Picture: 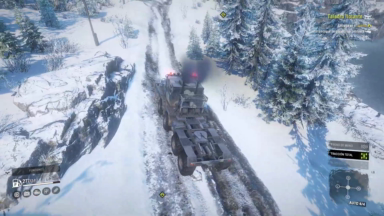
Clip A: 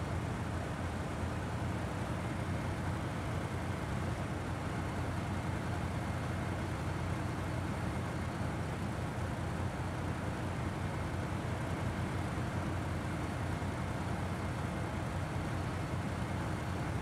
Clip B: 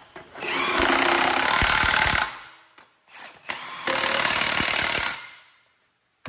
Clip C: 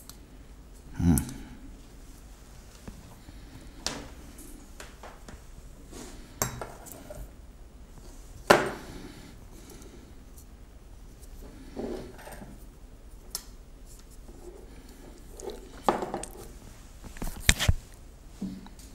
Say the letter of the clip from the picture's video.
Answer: A